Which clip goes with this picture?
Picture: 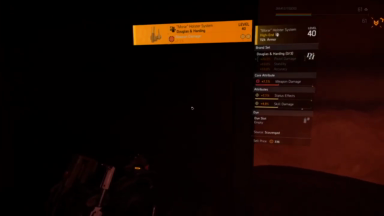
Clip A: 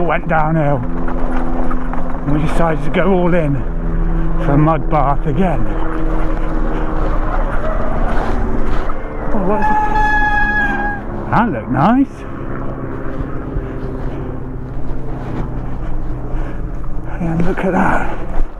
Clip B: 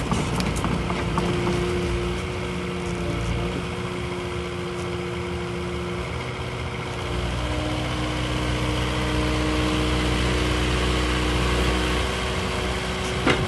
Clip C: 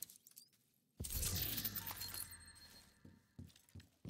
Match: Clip C